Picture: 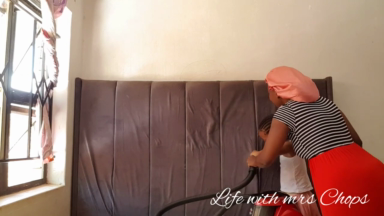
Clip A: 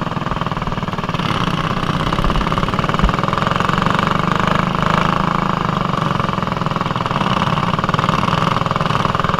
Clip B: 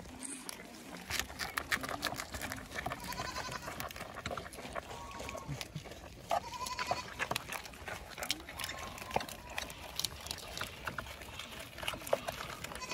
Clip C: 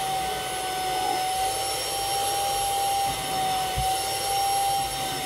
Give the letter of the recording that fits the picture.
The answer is C